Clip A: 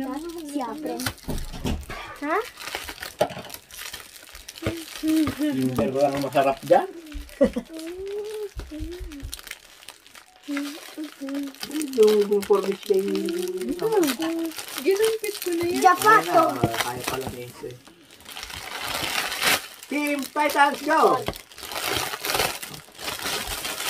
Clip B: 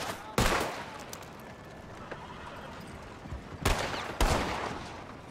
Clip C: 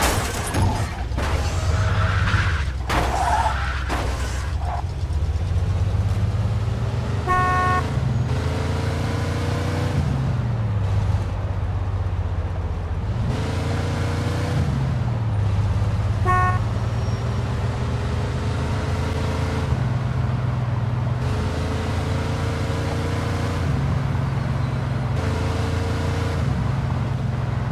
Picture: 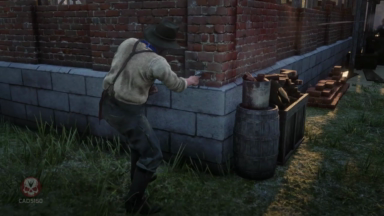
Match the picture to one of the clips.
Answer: B